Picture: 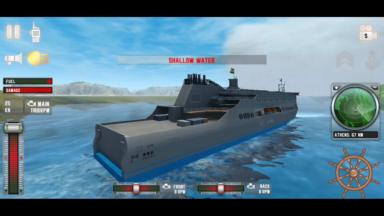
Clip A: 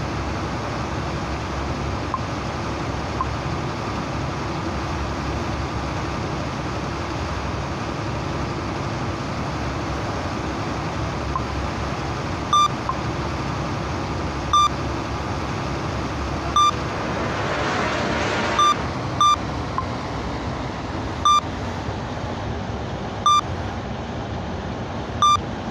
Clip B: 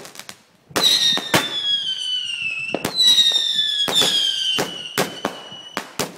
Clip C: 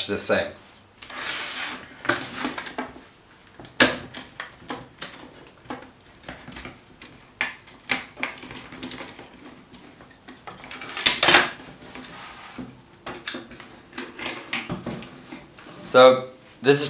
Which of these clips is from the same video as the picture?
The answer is A